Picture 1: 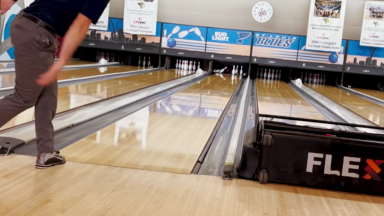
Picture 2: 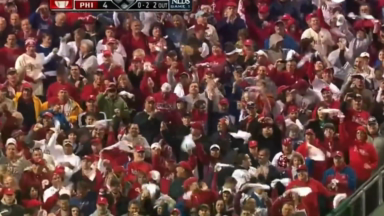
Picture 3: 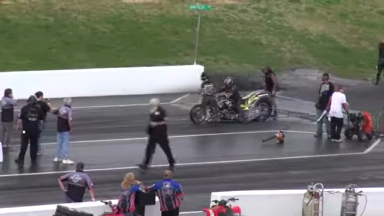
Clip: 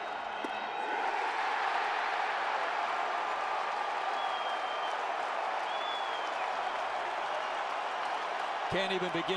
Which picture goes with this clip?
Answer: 2